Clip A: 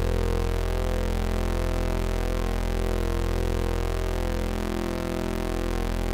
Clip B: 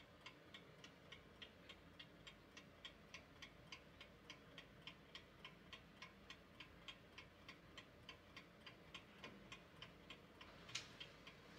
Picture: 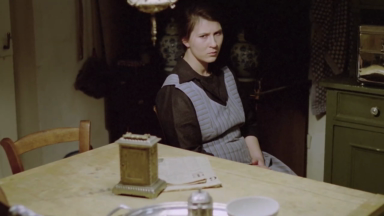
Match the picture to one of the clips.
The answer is B